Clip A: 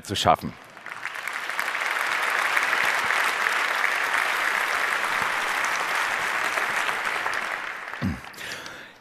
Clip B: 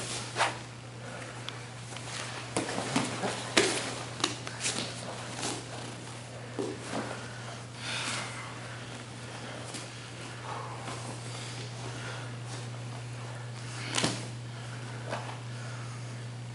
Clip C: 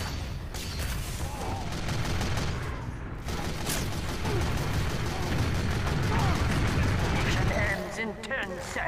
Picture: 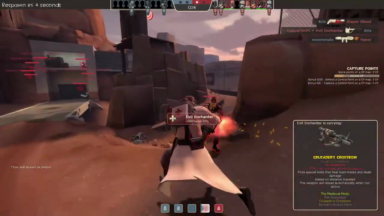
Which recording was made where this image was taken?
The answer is C